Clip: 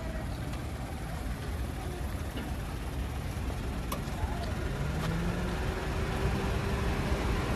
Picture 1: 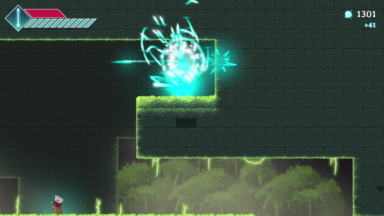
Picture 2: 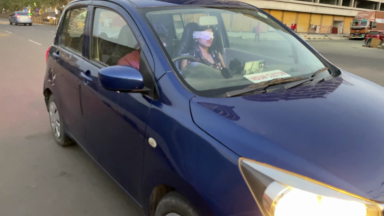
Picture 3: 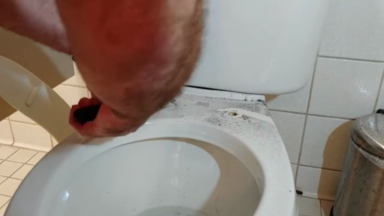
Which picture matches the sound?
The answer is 2